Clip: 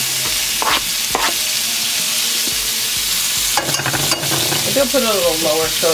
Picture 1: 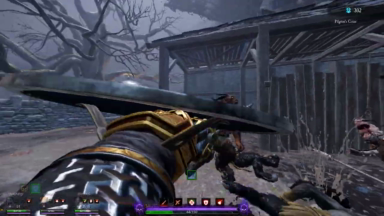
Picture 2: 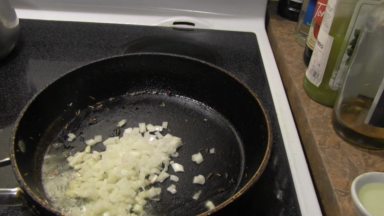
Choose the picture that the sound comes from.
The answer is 2